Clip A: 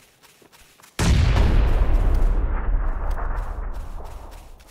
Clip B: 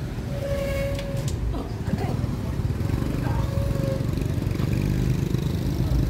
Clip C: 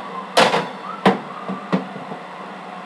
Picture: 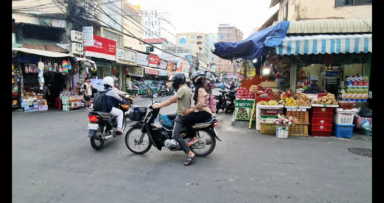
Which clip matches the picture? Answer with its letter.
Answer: B